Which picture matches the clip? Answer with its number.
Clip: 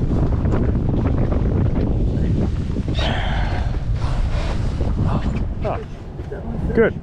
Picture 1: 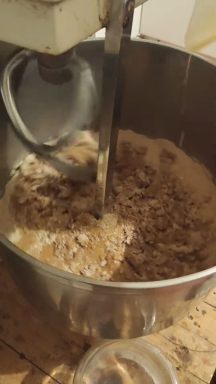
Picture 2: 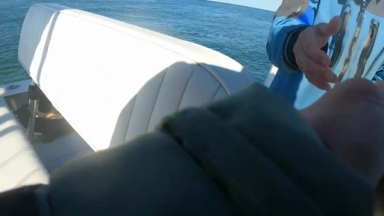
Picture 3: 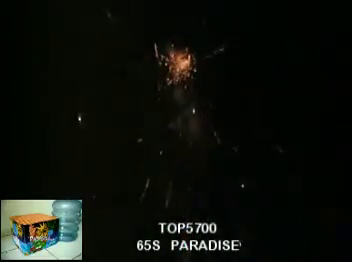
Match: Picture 2